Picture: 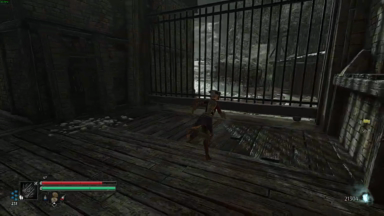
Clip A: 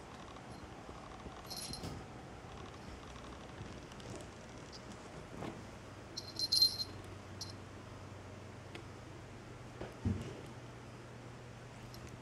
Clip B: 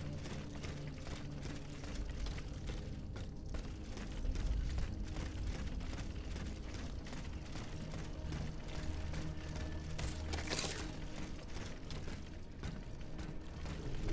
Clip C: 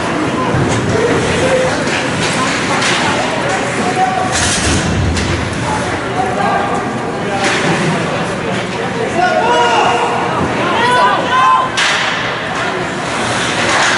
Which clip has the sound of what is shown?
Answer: B